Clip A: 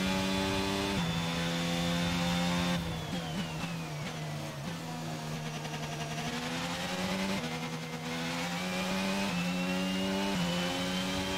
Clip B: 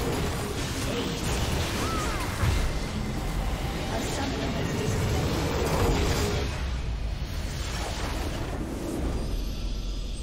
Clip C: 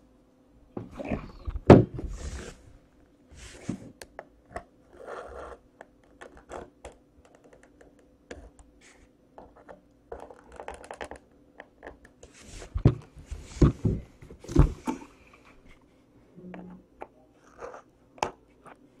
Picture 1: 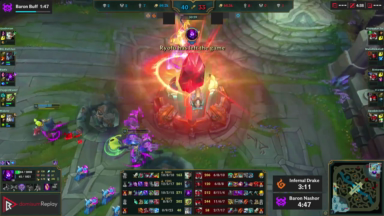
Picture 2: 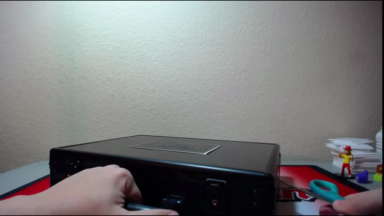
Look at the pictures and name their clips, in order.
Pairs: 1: B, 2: C